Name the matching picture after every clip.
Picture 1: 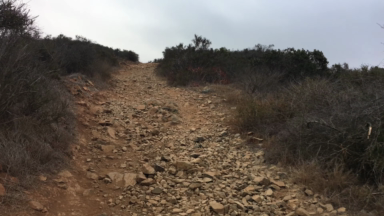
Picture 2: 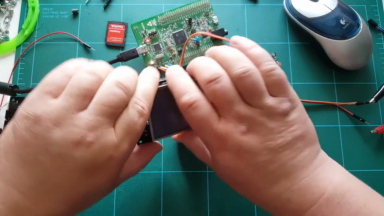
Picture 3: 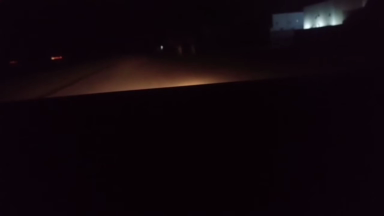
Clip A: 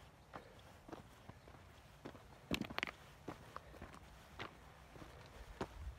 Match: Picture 1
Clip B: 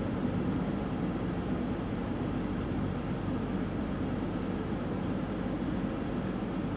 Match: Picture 3